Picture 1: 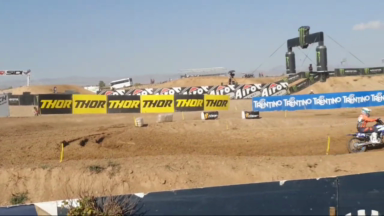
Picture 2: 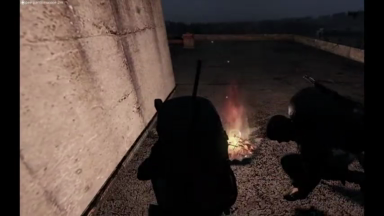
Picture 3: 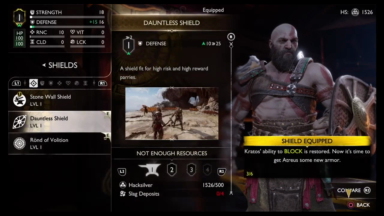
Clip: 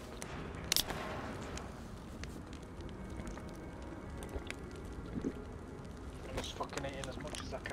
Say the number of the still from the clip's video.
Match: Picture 2